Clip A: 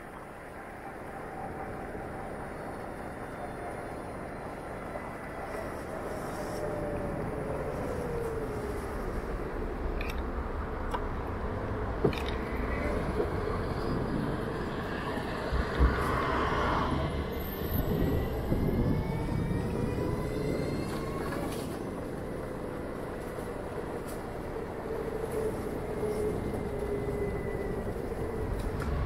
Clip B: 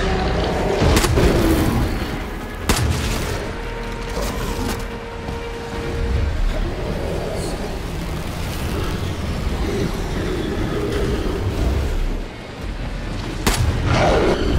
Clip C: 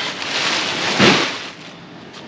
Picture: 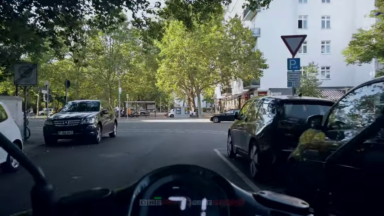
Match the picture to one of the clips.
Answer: A